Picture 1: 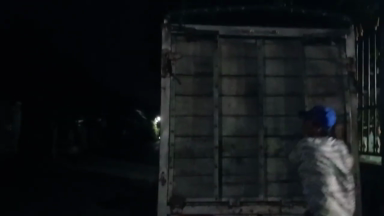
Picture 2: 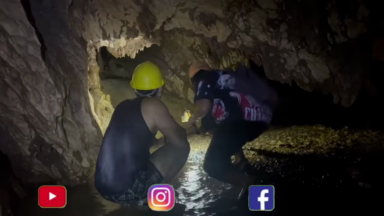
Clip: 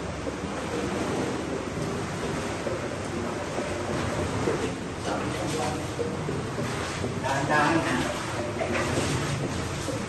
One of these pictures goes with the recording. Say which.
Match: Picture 2